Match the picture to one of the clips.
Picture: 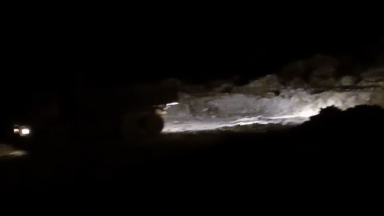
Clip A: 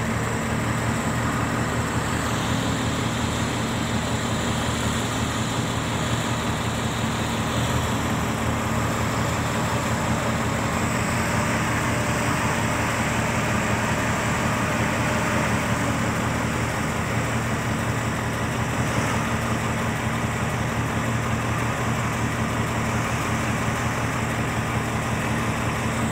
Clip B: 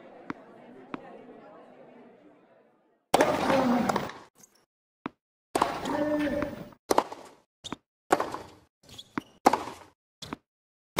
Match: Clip A